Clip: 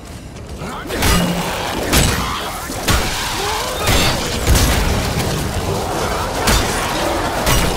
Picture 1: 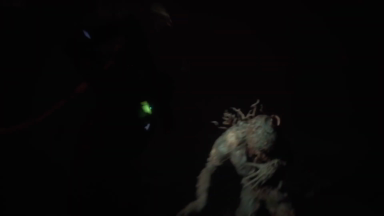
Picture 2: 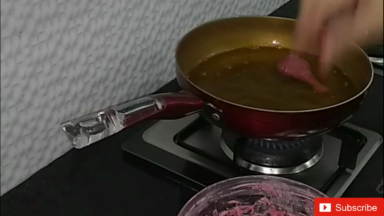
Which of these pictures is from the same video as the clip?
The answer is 1